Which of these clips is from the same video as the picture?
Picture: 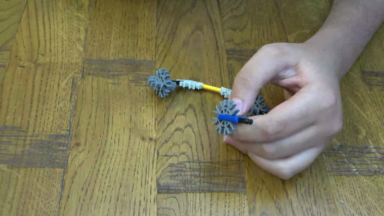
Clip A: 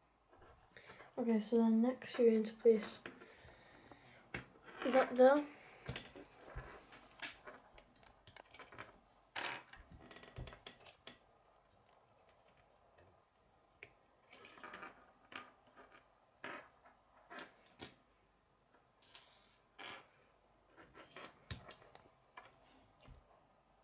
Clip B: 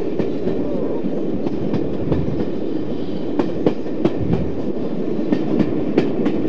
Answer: A